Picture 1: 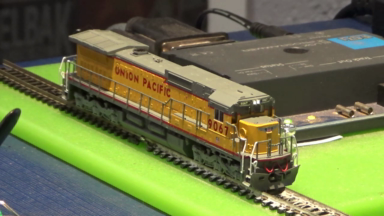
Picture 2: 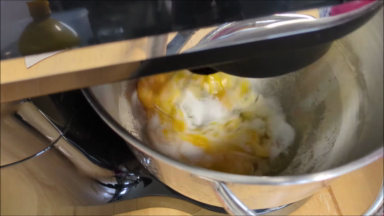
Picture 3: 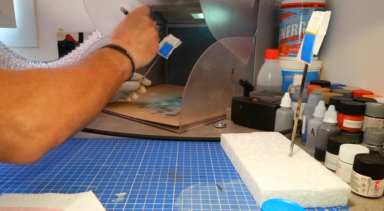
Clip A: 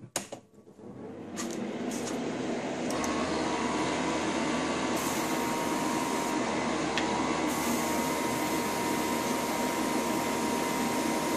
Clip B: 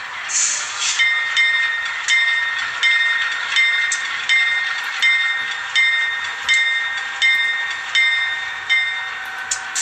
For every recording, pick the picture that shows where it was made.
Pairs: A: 3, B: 1